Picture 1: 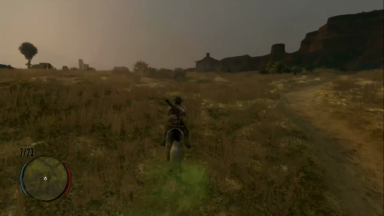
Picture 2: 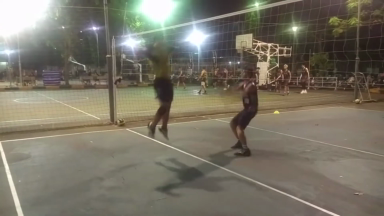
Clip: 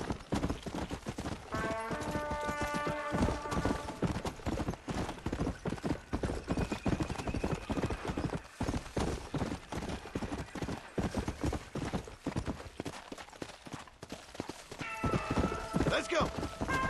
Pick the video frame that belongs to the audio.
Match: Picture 1